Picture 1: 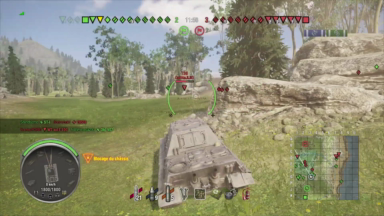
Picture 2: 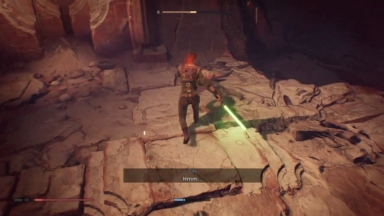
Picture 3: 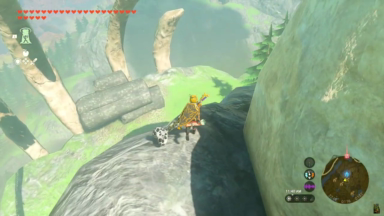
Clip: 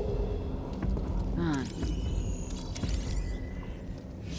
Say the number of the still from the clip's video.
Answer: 2